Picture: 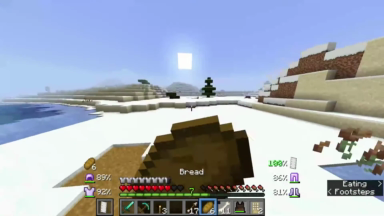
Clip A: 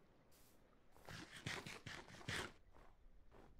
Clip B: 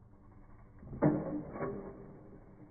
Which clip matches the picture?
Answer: A